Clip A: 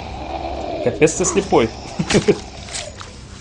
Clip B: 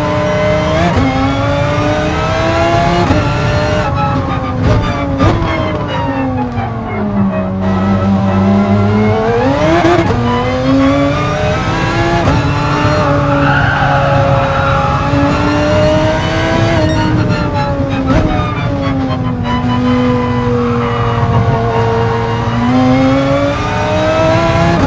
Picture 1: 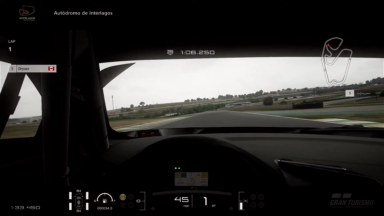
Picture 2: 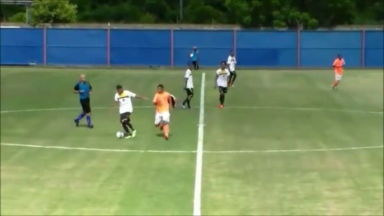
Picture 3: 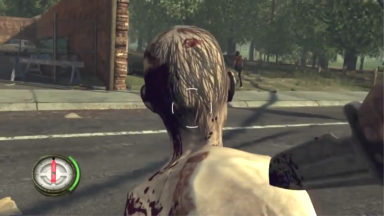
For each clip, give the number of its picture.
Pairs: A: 3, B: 1